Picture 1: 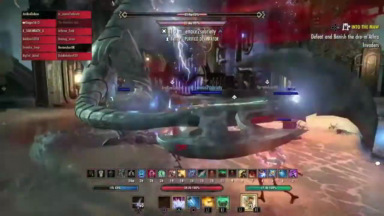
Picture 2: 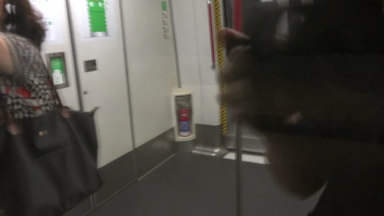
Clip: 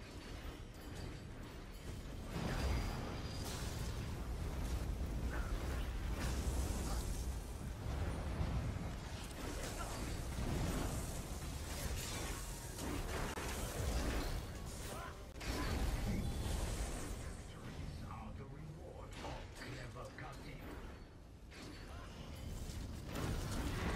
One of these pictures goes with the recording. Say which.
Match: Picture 1